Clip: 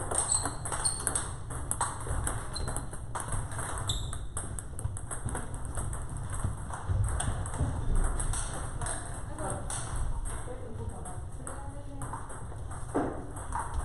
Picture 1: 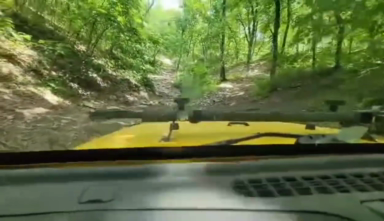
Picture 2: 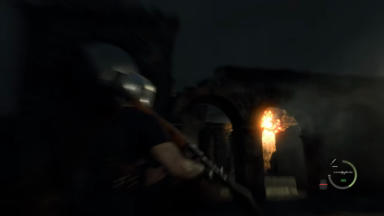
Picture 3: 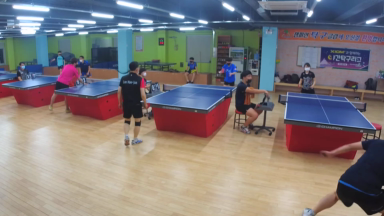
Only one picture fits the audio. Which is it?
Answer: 3